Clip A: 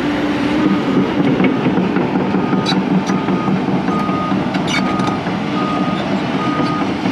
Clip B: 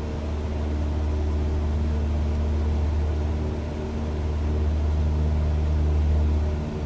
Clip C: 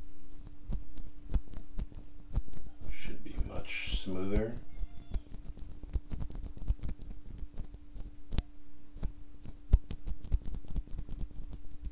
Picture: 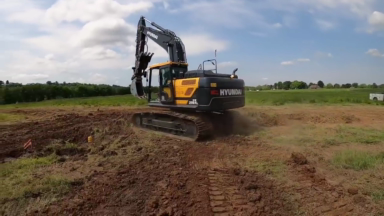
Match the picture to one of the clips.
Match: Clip A